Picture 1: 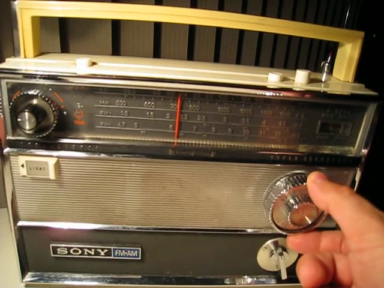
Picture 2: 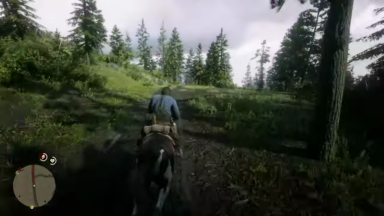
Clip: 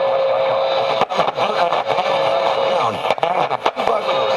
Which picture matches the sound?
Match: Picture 1